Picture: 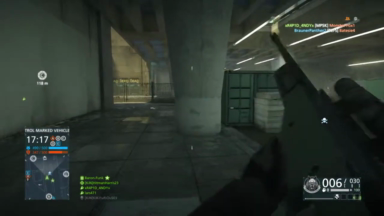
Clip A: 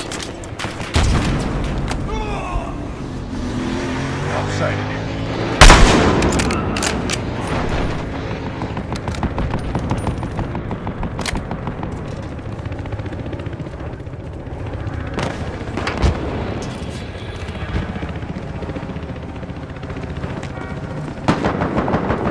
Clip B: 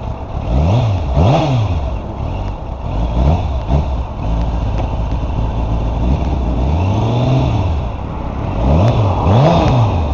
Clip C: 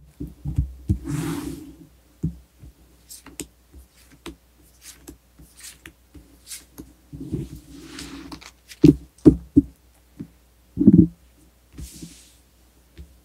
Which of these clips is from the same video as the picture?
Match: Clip A